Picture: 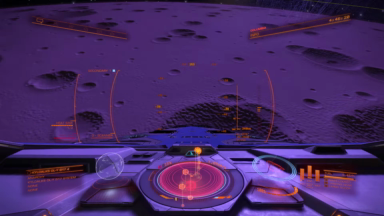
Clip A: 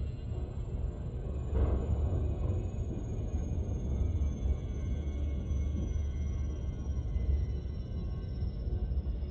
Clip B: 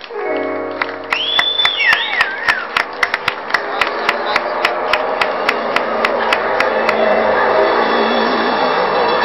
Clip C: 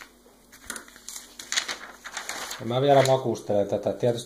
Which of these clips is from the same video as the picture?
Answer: A